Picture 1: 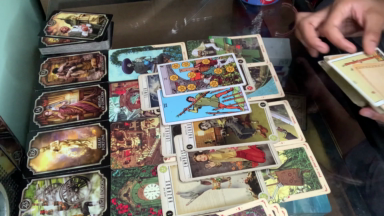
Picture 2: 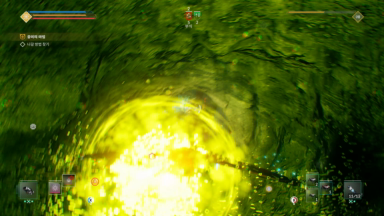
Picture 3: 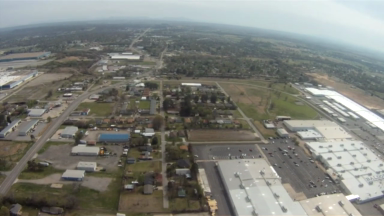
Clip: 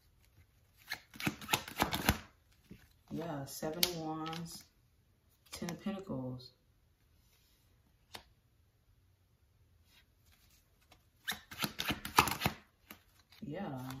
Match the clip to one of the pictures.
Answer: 1